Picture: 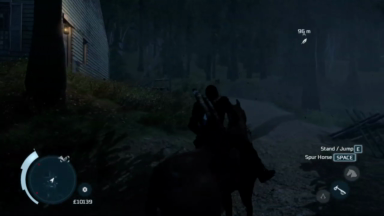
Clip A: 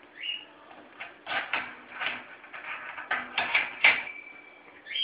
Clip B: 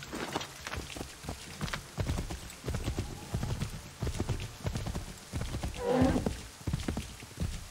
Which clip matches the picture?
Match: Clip B